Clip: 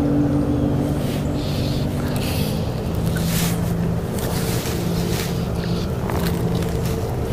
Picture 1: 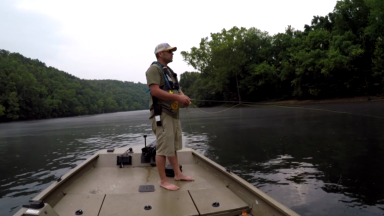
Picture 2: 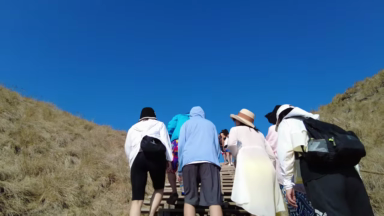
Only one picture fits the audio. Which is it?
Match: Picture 1